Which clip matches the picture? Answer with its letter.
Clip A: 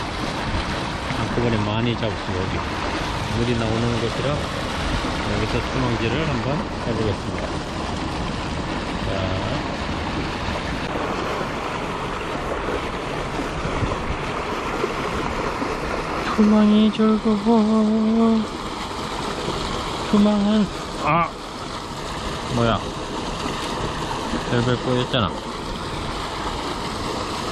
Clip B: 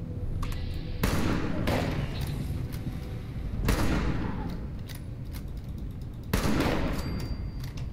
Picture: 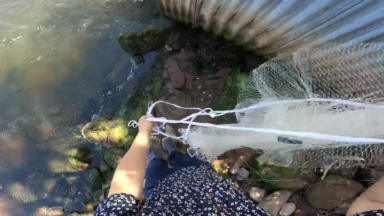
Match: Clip A